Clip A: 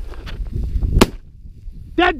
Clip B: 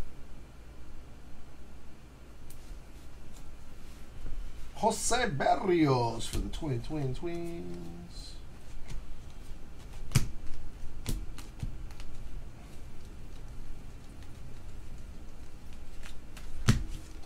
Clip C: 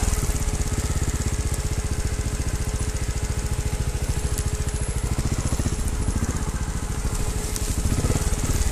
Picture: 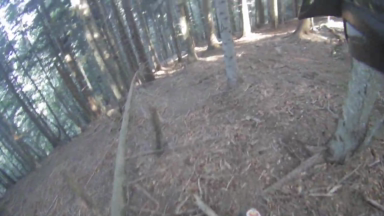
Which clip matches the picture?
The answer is C